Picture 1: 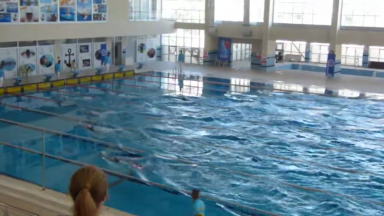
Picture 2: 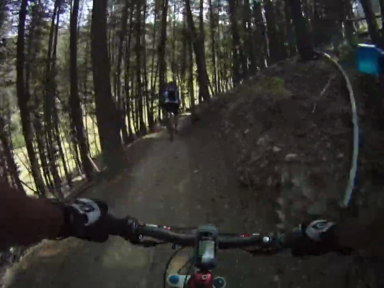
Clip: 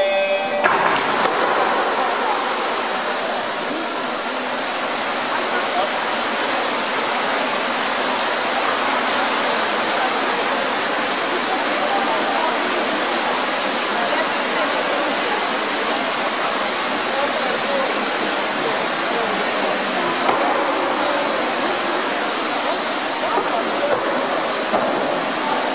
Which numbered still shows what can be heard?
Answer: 1